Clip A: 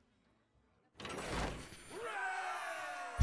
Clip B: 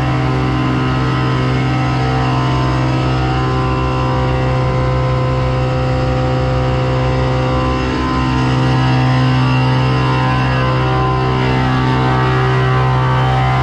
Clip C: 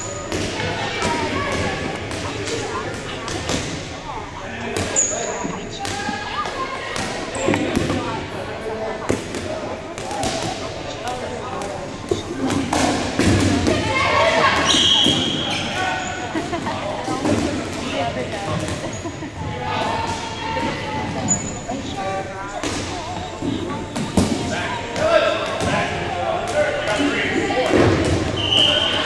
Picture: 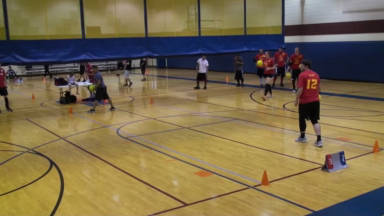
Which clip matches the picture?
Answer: C